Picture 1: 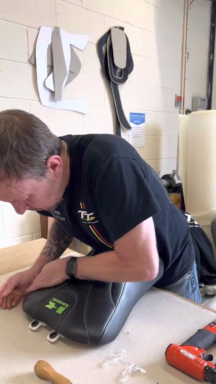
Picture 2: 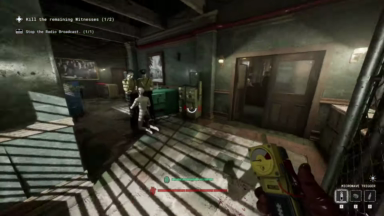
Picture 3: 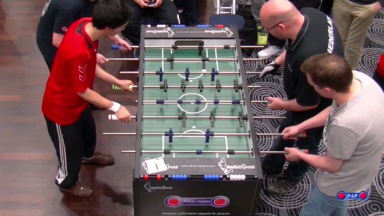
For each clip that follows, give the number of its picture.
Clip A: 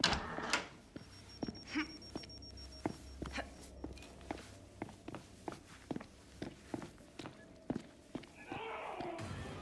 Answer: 2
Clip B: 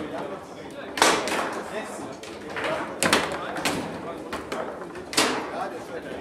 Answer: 3